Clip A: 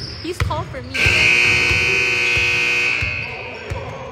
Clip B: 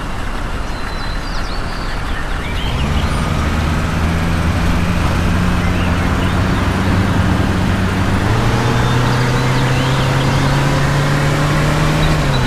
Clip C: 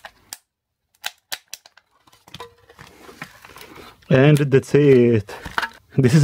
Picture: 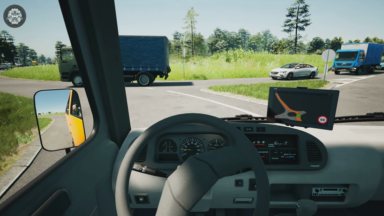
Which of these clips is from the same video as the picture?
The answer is B